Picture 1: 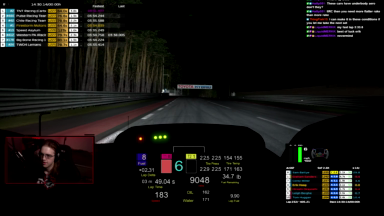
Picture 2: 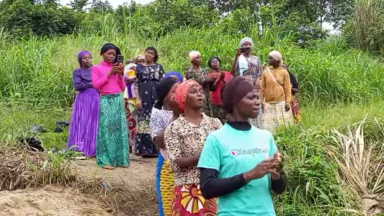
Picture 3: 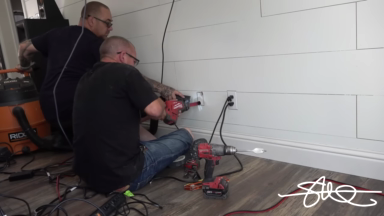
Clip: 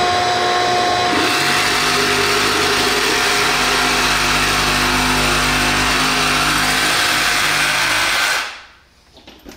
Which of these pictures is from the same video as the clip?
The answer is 3